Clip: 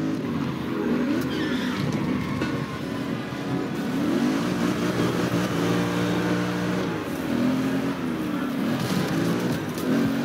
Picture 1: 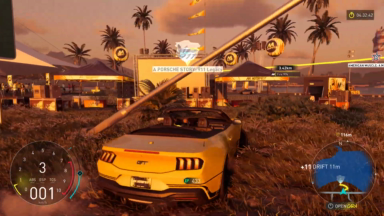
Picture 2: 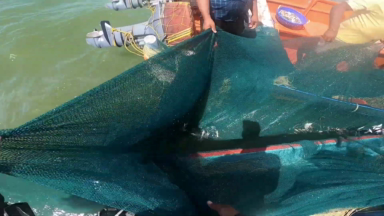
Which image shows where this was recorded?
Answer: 1